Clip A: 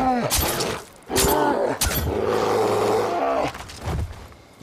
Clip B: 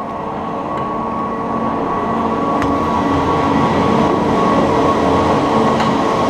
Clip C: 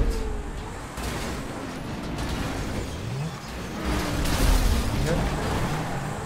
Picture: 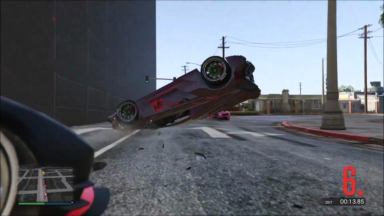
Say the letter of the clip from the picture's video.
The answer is C